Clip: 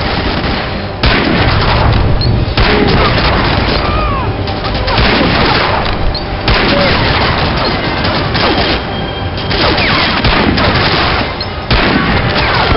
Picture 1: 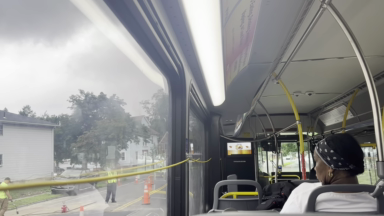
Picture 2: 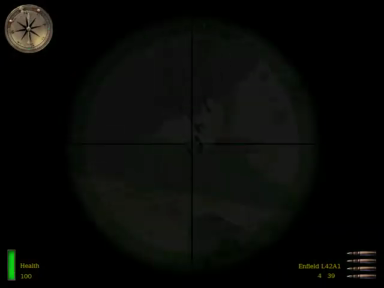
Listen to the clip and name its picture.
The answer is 2